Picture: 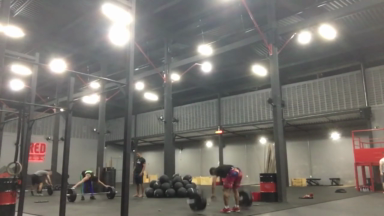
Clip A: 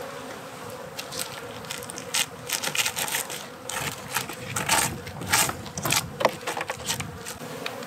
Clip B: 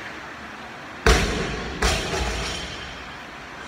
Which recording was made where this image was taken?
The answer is B